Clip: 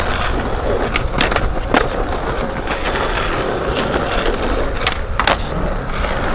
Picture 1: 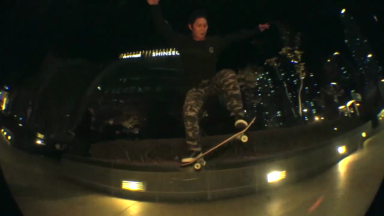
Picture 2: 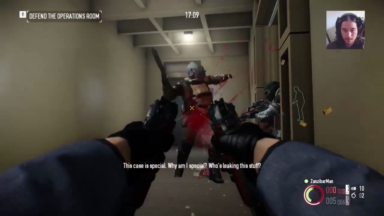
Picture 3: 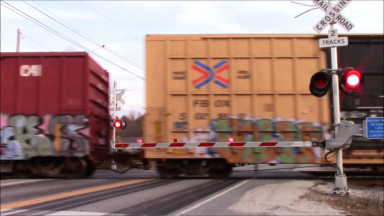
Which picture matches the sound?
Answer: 1